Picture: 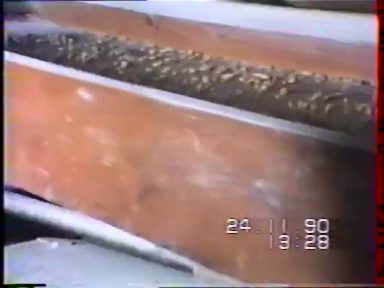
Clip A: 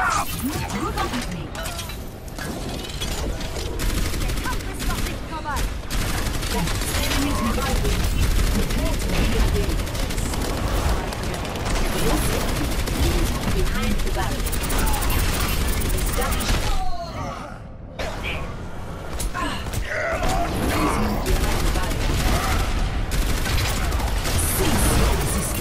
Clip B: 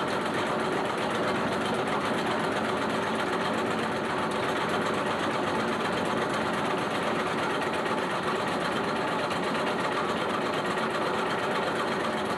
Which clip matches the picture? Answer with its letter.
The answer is B